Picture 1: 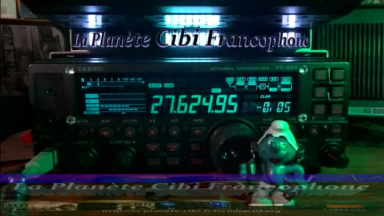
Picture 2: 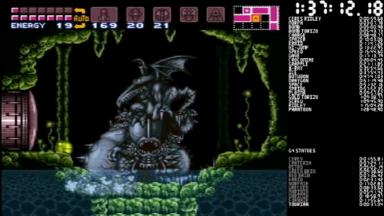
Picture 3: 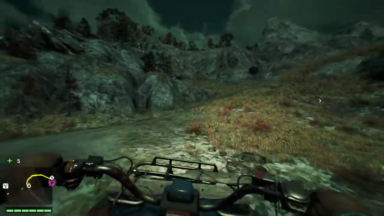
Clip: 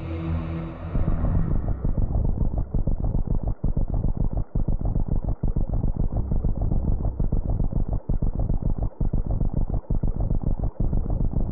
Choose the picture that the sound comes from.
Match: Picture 2